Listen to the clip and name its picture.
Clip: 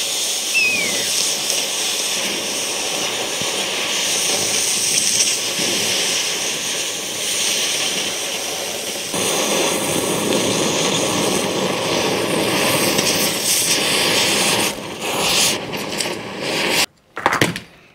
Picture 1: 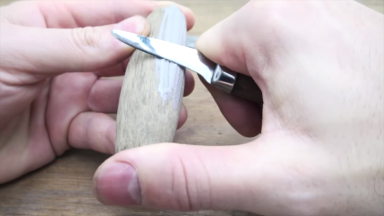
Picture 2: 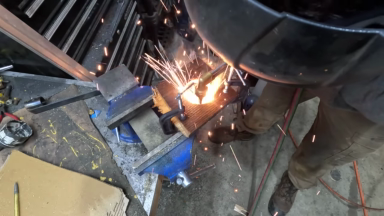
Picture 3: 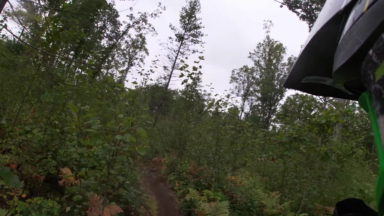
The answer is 2